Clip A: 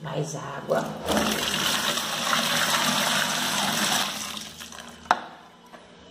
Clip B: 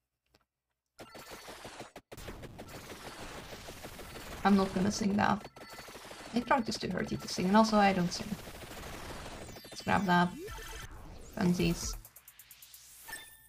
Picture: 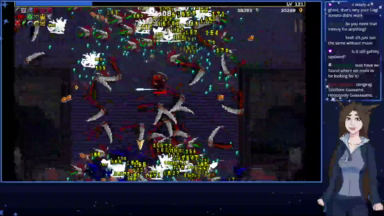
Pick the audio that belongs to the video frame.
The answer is B